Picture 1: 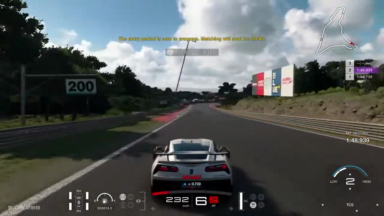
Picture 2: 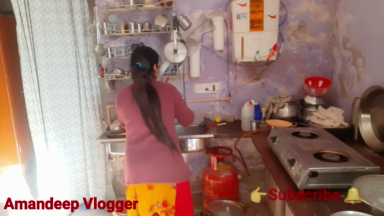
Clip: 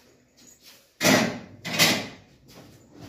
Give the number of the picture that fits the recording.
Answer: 2